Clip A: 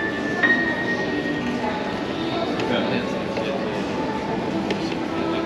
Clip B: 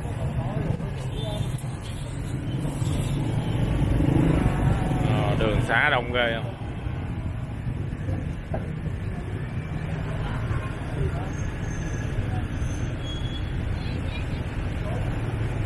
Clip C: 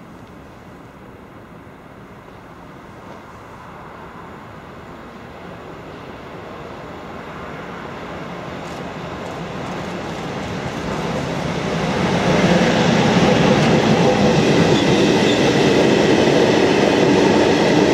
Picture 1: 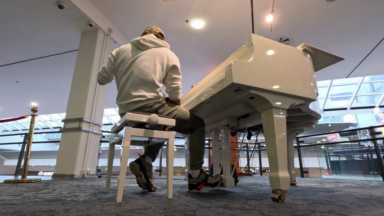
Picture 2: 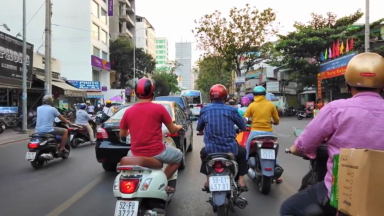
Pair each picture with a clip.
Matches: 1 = A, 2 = B